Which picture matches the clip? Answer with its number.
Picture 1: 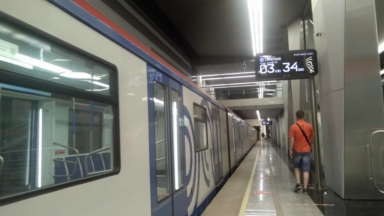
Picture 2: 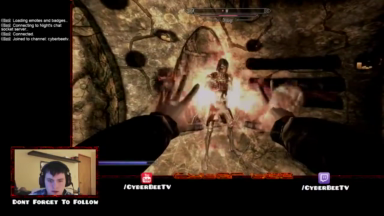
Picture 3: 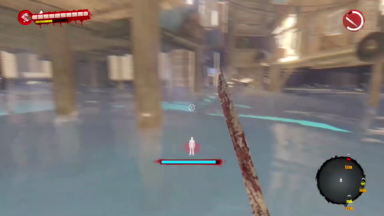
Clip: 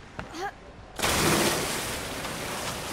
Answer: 3